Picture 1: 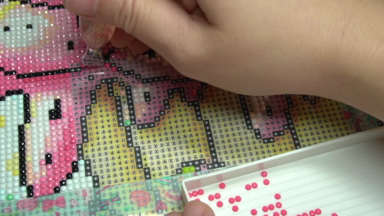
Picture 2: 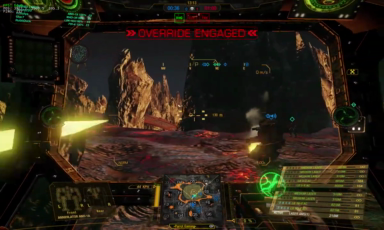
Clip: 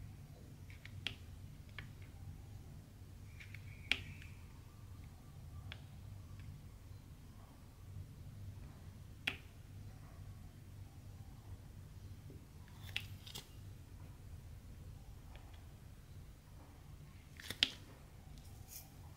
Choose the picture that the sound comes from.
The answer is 1